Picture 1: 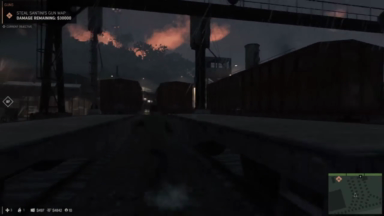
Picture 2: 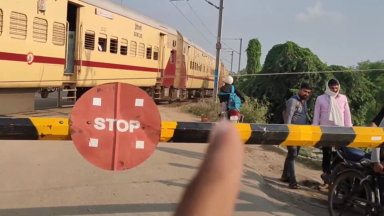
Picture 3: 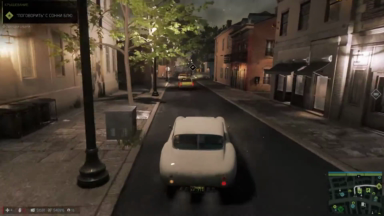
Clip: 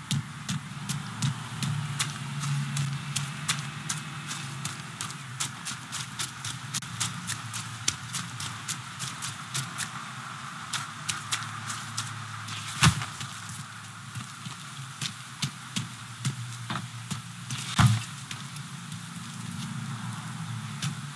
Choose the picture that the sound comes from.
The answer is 1